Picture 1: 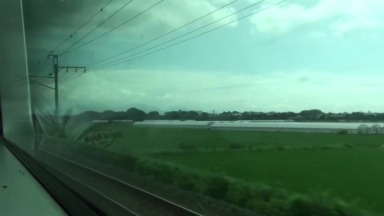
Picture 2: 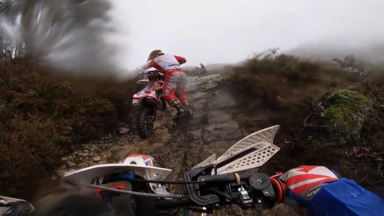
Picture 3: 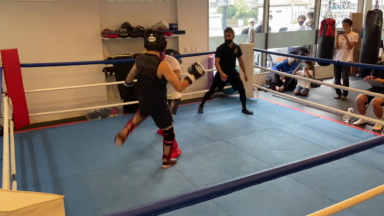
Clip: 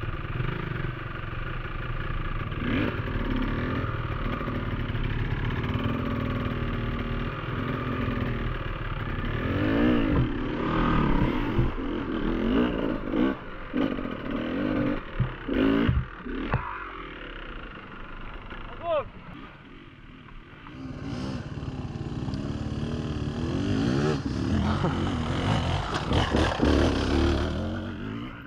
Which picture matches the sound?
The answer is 2